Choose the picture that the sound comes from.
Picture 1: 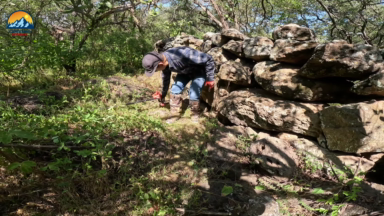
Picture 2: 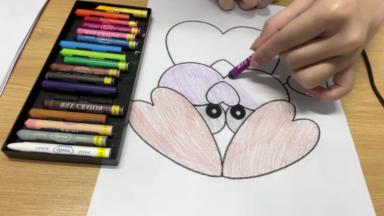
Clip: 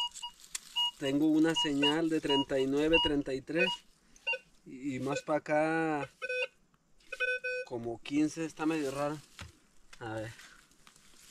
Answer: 1